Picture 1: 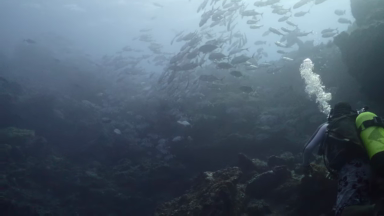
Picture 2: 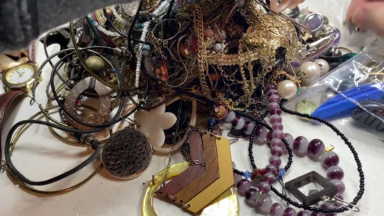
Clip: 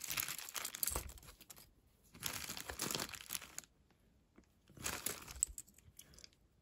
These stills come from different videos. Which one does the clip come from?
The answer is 2